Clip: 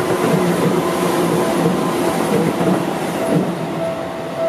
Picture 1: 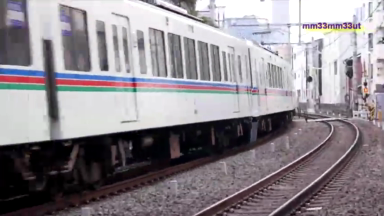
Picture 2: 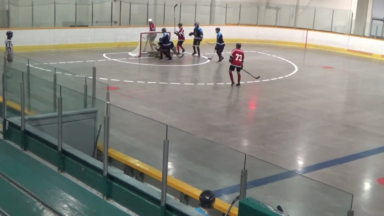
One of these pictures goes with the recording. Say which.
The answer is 1